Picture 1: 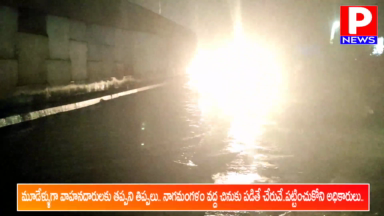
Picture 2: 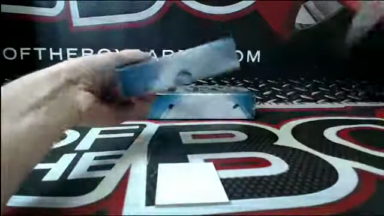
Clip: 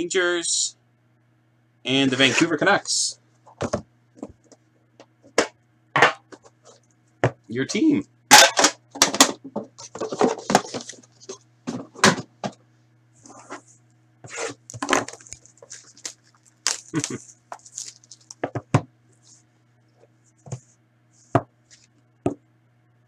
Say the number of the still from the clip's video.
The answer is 2